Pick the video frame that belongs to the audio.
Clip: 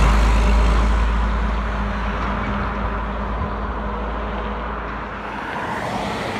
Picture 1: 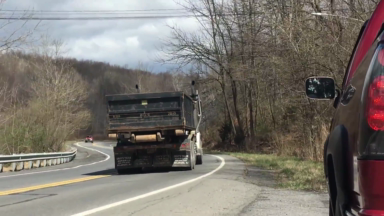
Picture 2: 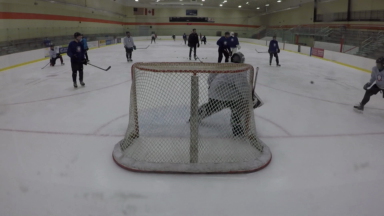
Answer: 1